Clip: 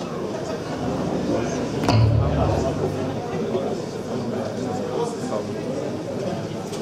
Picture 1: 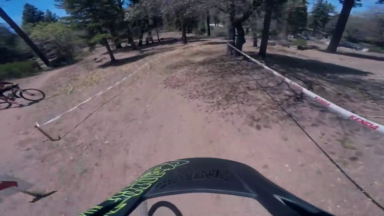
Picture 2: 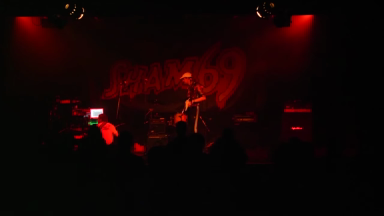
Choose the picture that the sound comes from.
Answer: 2